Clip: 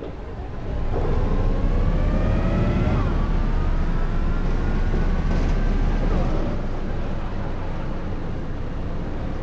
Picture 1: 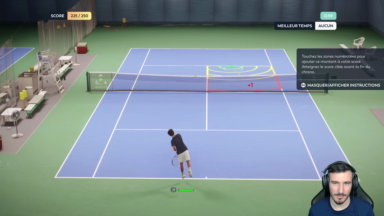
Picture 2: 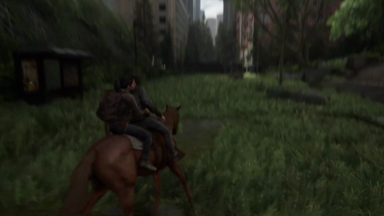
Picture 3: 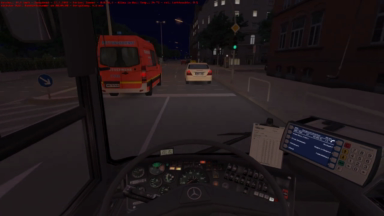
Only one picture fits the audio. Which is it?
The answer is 3